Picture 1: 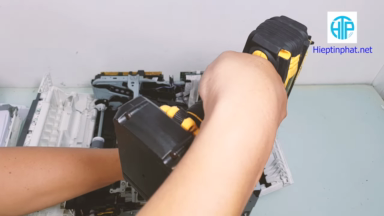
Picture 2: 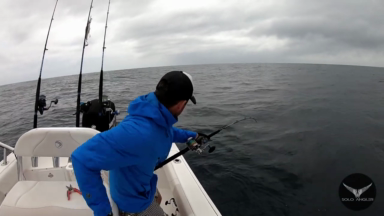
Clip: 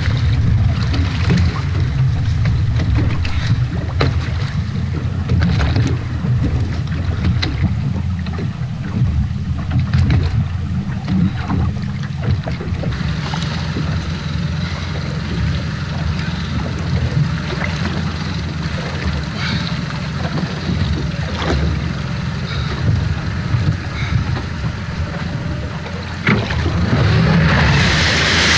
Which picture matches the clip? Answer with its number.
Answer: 2